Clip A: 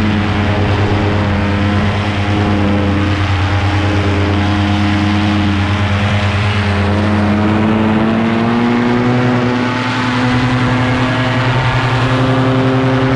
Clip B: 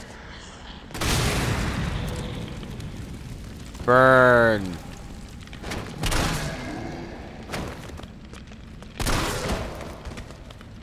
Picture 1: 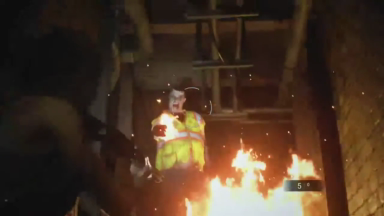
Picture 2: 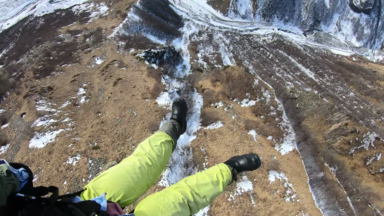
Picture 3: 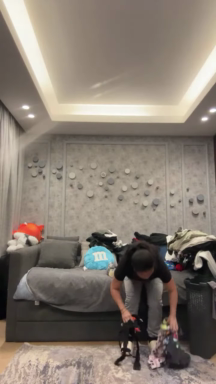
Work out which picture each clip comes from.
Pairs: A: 2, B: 1